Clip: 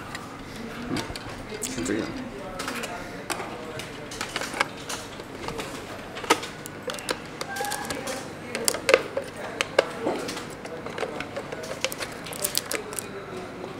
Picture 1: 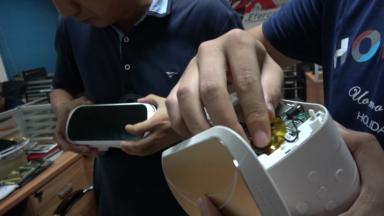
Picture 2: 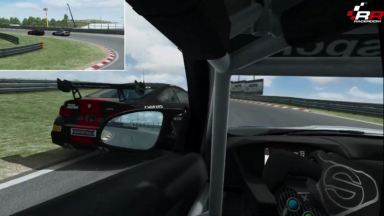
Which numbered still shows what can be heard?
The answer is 1